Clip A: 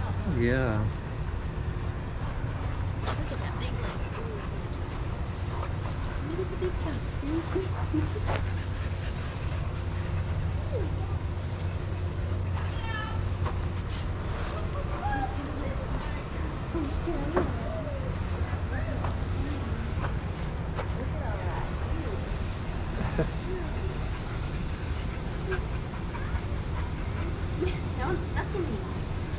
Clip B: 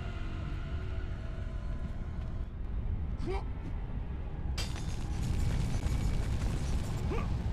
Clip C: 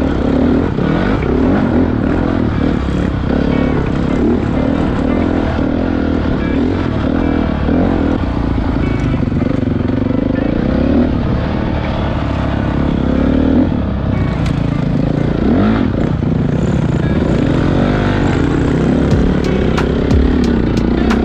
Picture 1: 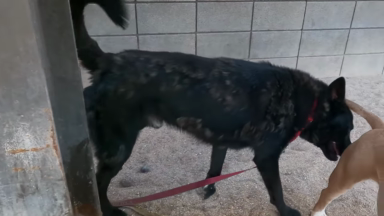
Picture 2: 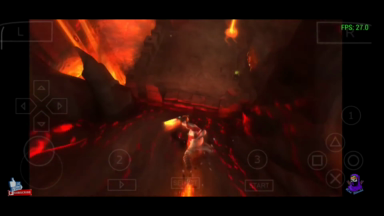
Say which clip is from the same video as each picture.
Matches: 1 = A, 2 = B